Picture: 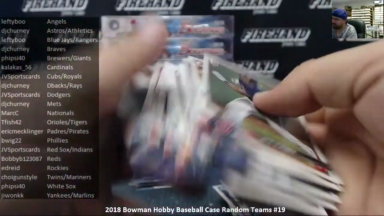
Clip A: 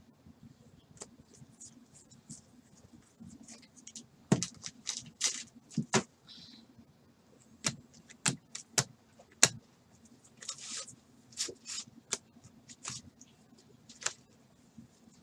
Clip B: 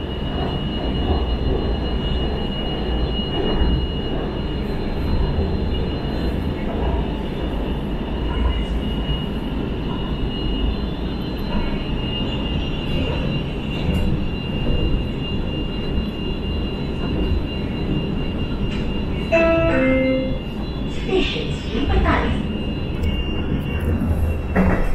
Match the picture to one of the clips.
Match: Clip A